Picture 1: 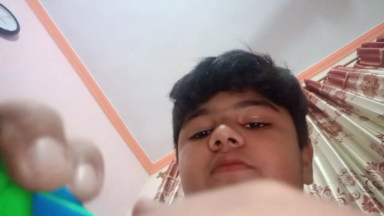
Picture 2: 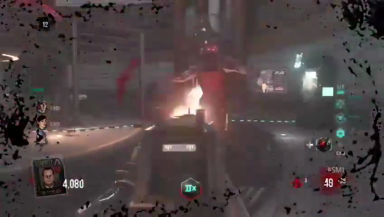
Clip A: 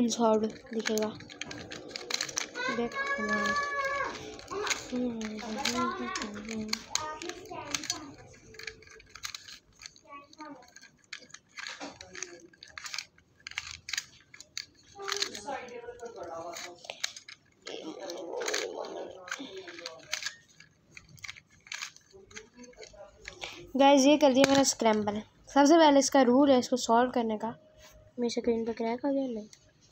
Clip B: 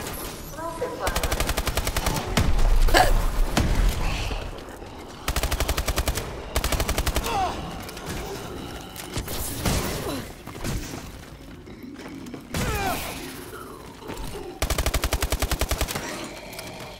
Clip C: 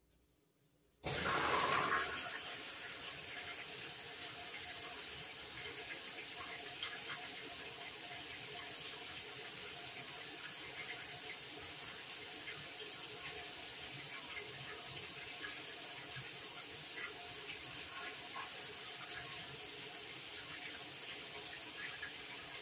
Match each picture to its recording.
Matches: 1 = A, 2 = B